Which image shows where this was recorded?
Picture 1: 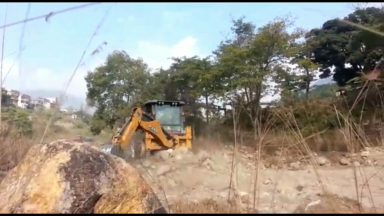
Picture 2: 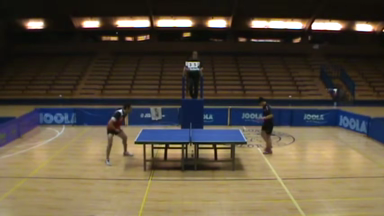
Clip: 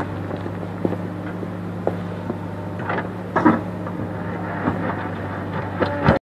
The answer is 1